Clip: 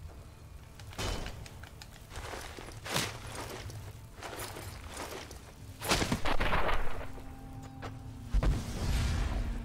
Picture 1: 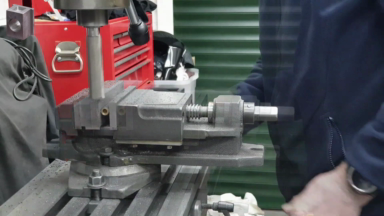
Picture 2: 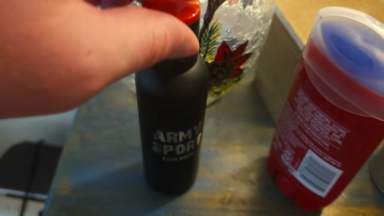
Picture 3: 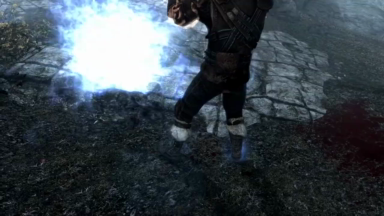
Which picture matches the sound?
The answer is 3